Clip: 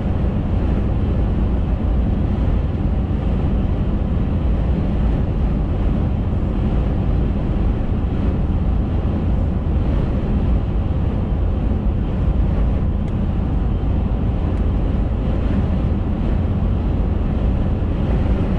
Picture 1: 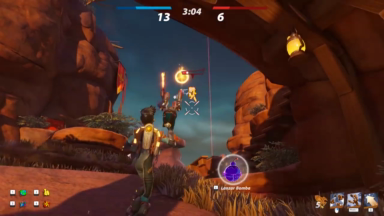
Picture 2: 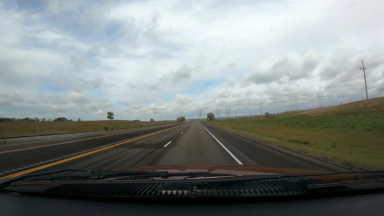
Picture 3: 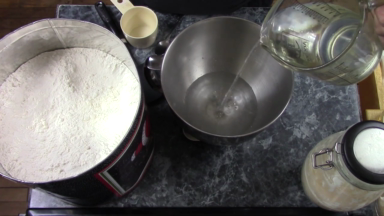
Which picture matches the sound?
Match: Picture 2